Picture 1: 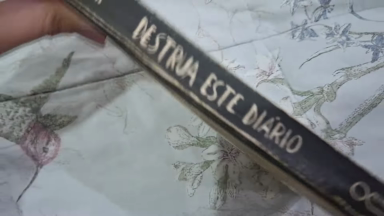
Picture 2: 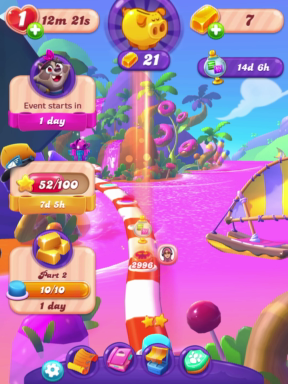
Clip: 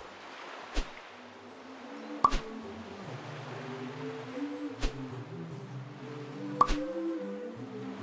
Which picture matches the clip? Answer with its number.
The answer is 2